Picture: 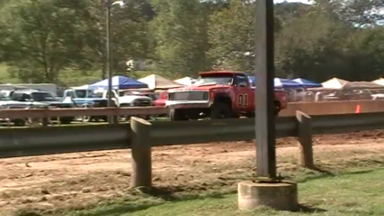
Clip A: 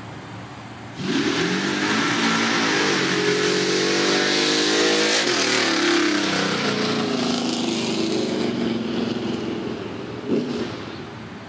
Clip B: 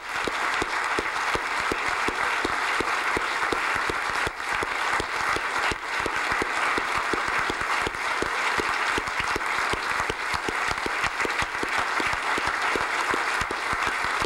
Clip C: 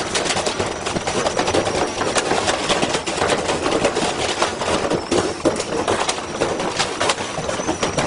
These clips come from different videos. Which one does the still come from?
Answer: A